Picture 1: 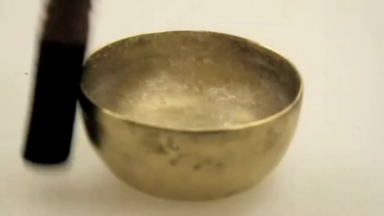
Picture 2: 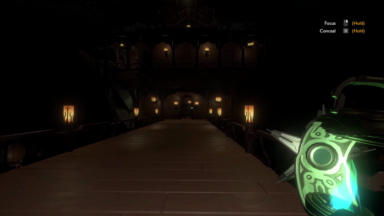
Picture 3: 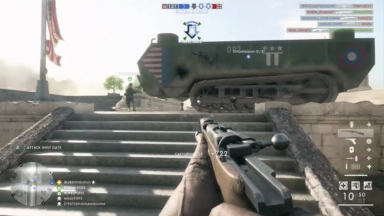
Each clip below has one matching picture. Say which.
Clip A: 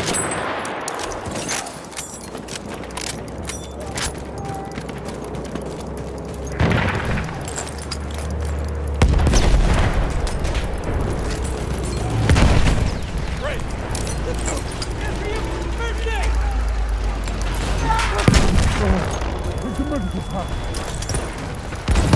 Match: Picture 3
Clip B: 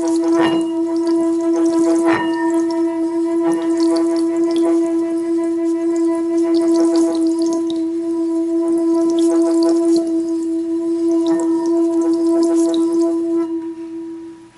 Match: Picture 1